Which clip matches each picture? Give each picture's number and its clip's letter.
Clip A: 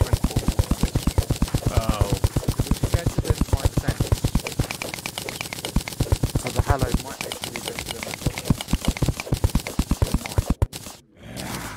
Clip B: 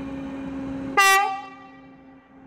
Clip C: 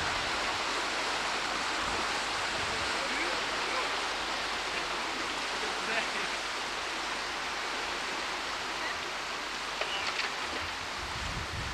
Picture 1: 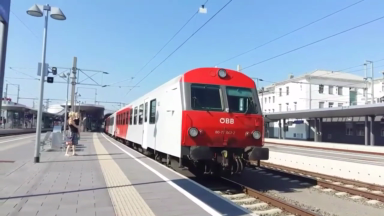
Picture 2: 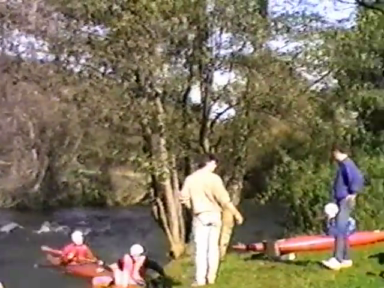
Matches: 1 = B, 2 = C